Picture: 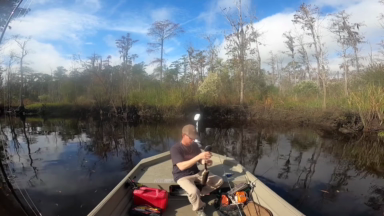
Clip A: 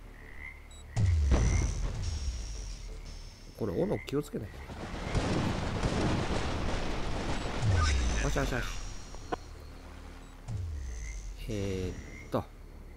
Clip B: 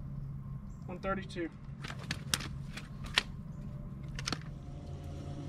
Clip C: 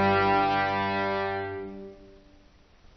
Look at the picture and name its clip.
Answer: B